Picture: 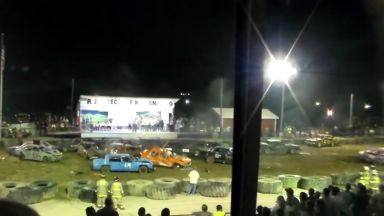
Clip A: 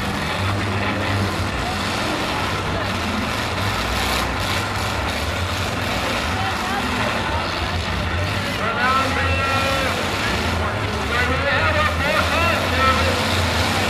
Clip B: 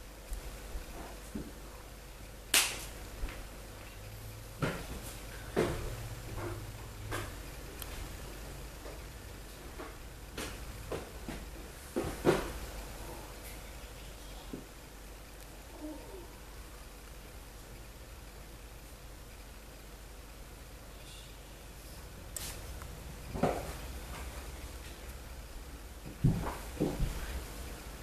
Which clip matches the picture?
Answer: A